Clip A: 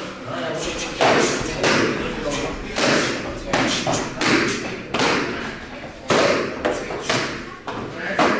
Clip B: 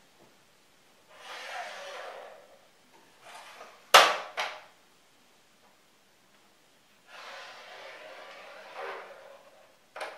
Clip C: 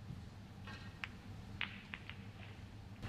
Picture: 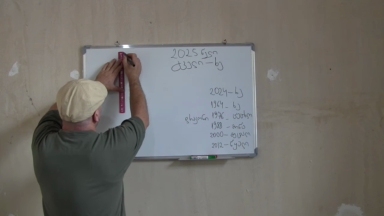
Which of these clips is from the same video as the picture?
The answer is B